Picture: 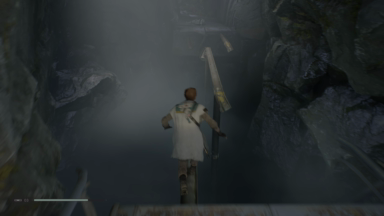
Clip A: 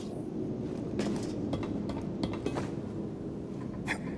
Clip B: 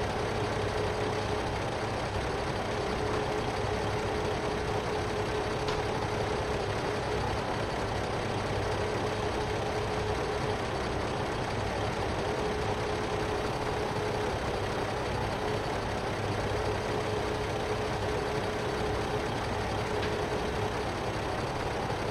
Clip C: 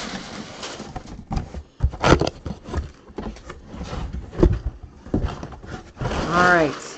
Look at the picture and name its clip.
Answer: A